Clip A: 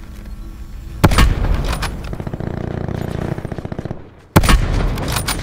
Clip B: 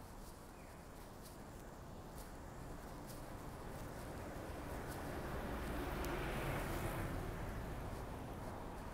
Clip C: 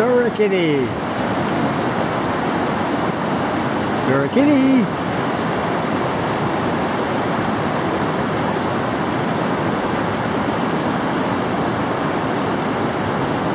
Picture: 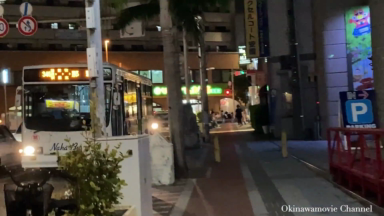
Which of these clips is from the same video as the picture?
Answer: B